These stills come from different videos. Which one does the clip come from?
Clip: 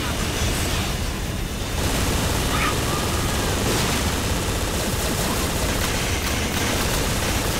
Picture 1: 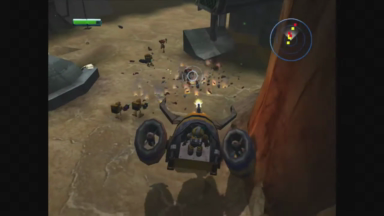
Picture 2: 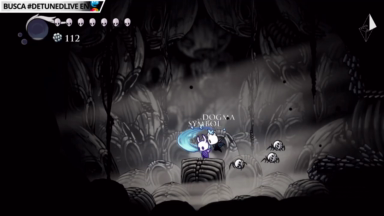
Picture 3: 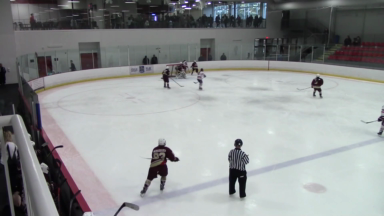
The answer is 1